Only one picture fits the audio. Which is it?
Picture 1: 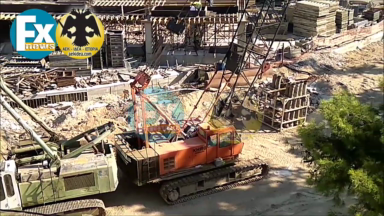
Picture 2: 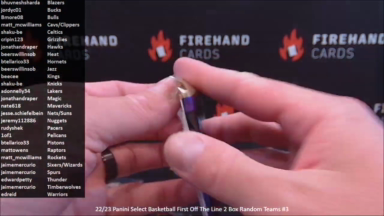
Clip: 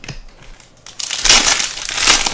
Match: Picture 2